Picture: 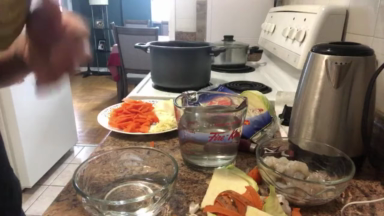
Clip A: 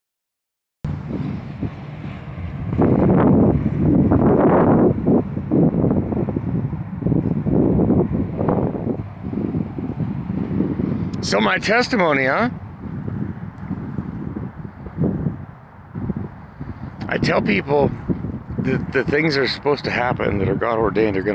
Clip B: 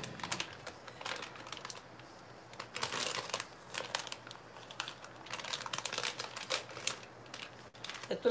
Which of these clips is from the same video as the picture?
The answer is B